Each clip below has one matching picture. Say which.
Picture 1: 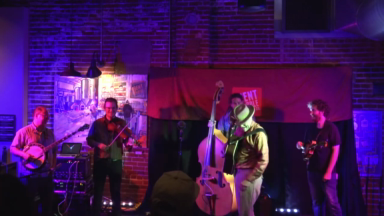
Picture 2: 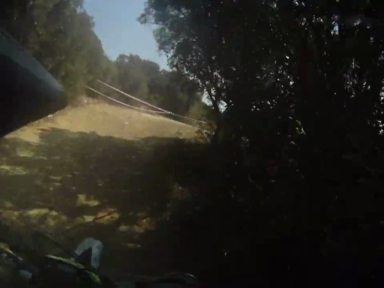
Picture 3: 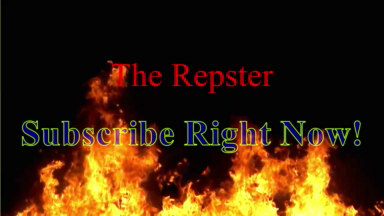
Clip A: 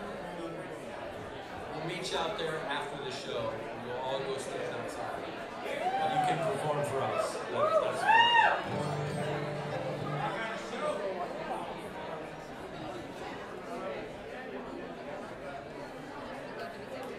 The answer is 1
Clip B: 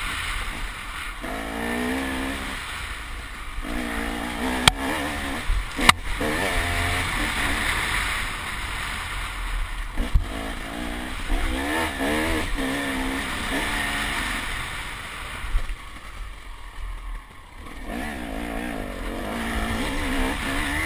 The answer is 2